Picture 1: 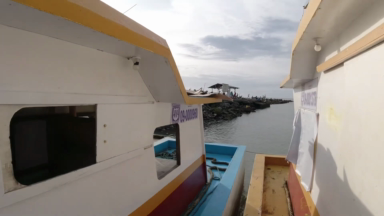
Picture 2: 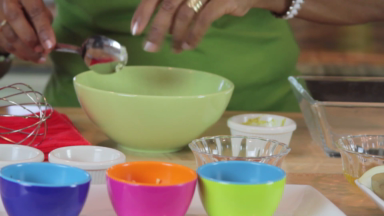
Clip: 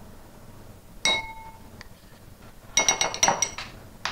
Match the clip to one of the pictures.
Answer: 2